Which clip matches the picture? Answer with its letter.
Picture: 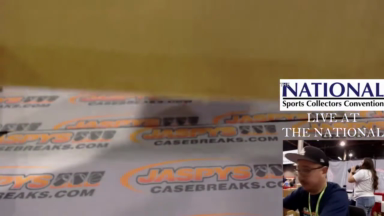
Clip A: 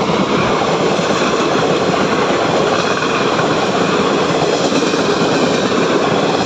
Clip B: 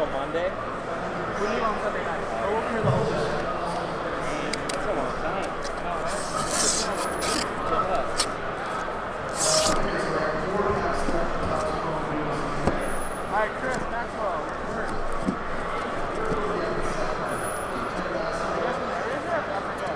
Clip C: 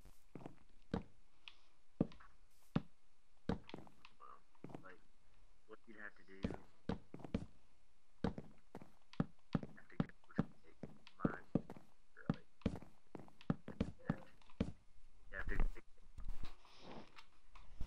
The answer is B